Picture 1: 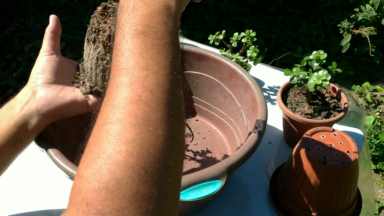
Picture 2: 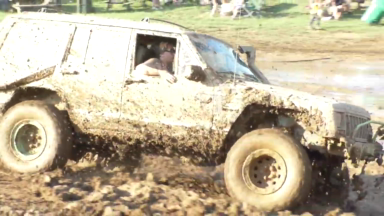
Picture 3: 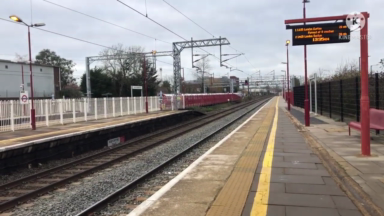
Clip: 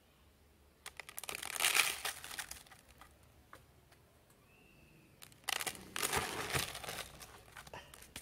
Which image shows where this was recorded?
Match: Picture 1